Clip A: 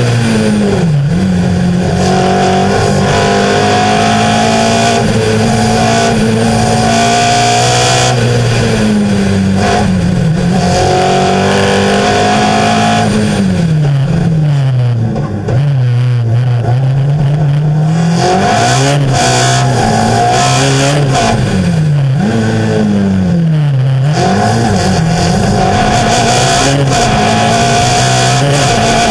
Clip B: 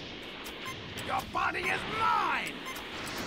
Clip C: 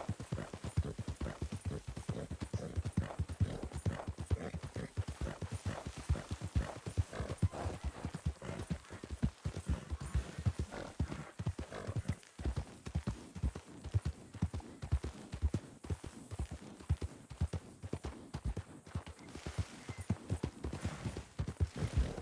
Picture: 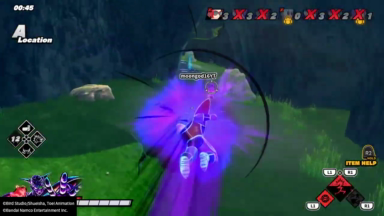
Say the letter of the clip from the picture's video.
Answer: B